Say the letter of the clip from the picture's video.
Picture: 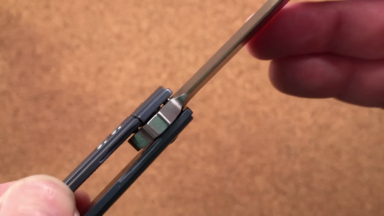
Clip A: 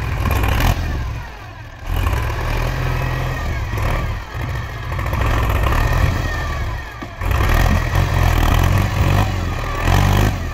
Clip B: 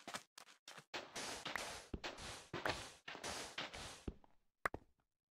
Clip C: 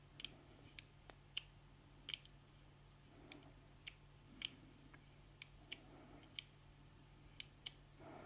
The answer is C